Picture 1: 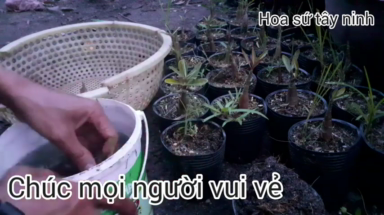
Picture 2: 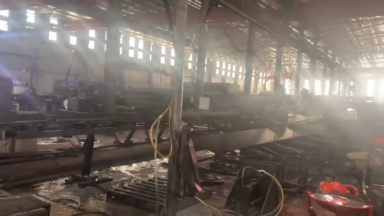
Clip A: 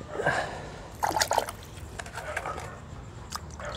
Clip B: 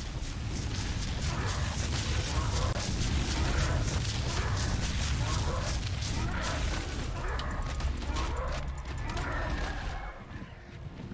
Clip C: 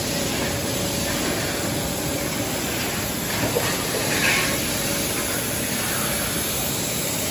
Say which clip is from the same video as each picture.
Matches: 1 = A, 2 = C